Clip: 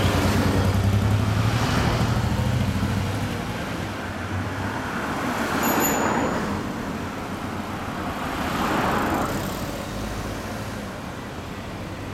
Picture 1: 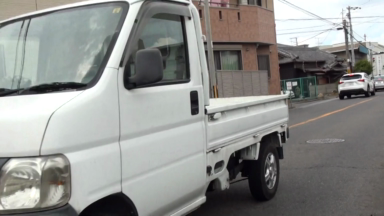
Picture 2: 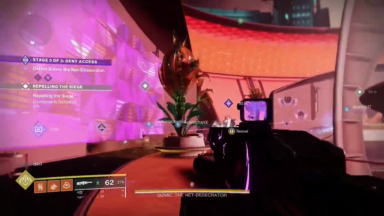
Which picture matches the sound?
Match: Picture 1